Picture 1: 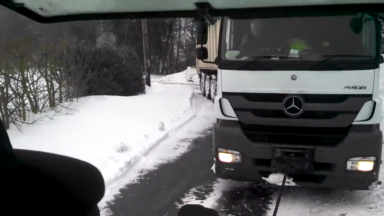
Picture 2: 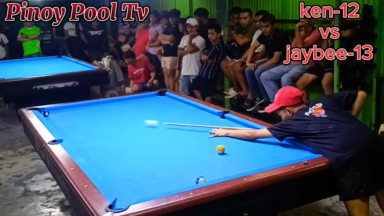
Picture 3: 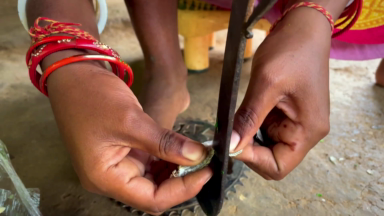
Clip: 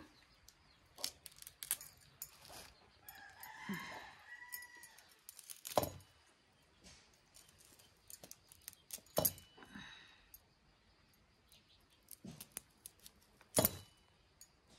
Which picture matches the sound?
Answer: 3